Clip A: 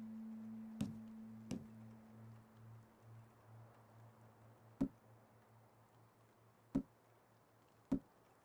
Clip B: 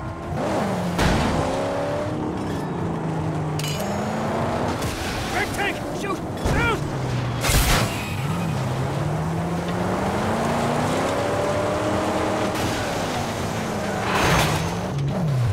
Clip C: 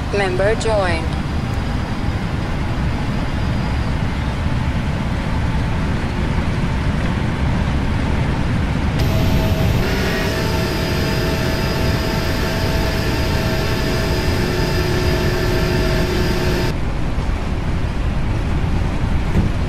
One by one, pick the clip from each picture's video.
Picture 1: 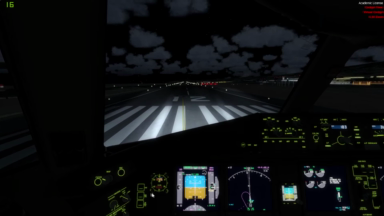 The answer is C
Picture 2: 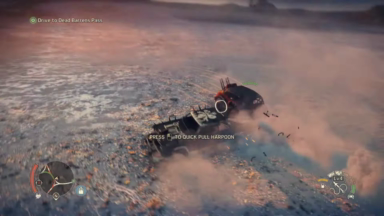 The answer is B